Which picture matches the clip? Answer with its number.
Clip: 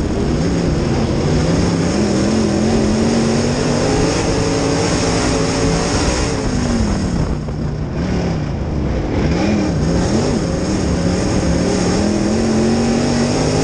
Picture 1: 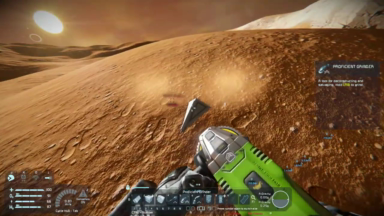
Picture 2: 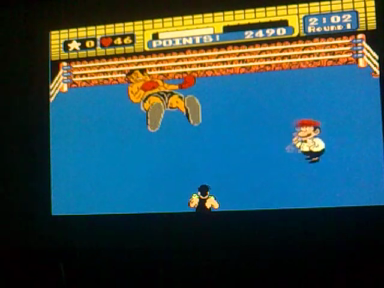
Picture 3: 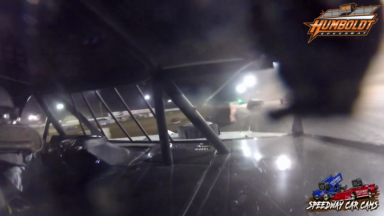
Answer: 3